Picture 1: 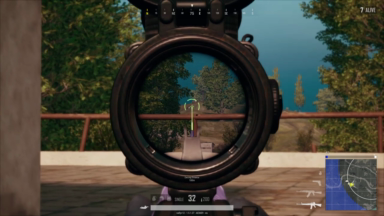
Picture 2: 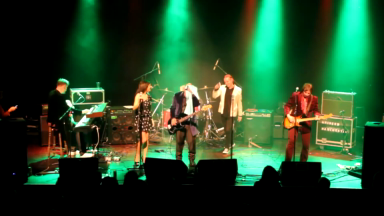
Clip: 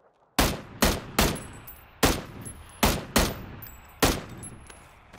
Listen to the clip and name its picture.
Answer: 1